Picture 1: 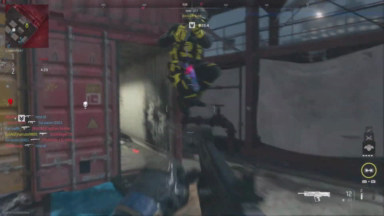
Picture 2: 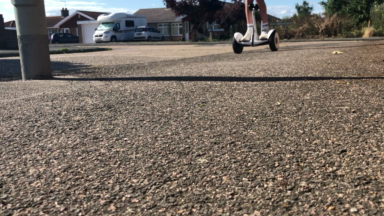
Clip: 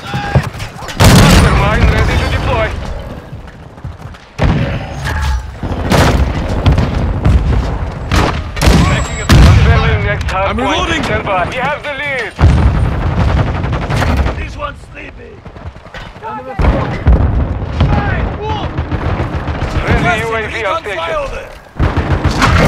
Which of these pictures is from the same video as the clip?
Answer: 1